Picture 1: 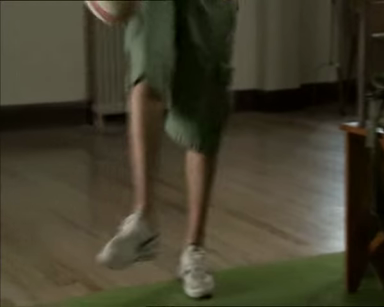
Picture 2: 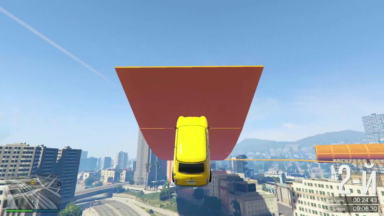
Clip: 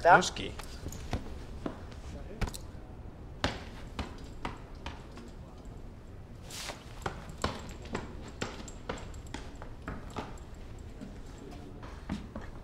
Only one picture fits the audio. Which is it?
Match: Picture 1